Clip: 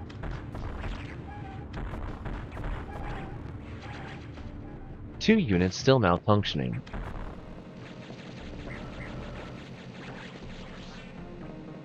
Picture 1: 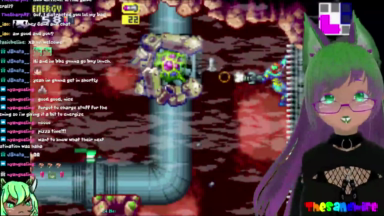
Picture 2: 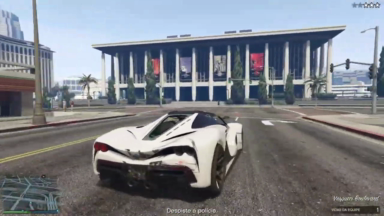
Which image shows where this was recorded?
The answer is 1